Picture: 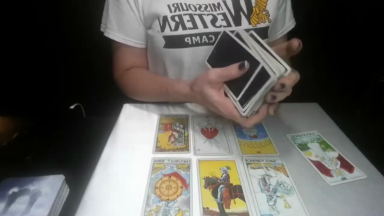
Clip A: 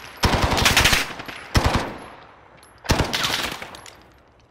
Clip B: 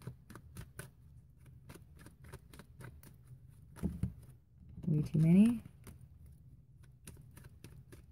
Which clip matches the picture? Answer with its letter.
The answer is B